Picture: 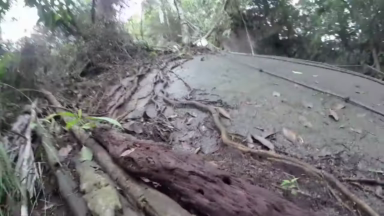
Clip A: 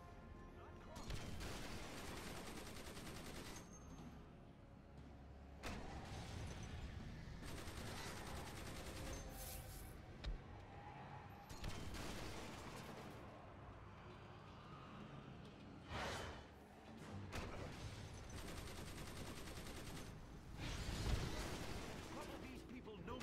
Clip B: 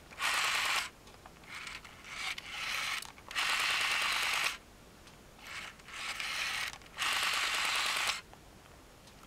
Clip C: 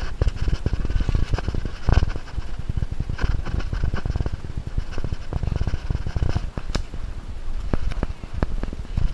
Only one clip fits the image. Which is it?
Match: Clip C